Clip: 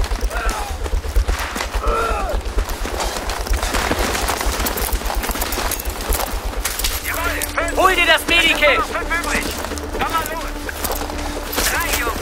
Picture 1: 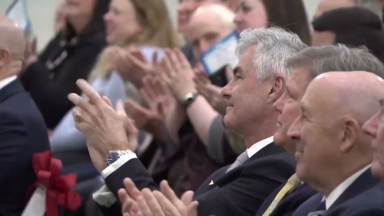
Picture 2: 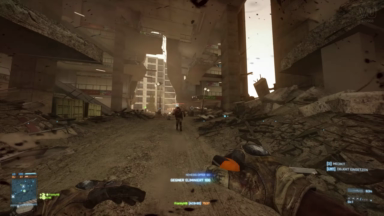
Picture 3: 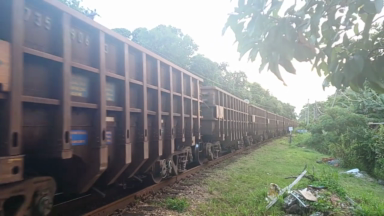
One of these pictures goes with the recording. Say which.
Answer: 2